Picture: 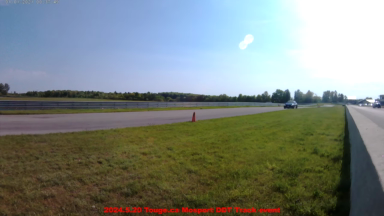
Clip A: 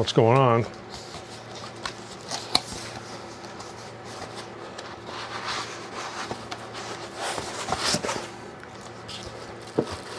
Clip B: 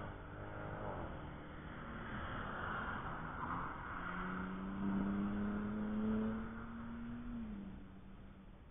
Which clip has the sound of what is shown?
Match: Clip B